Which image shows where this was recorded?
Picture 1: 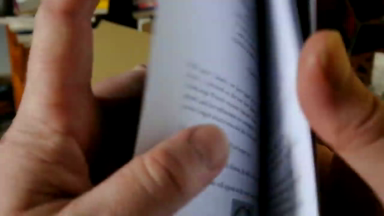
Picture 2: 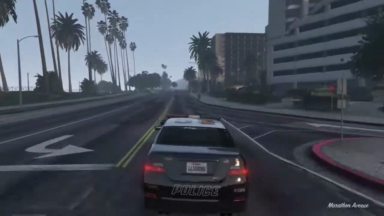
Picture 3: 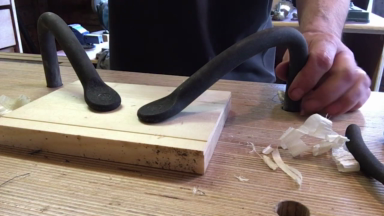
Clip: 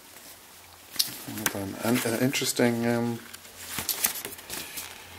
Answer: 1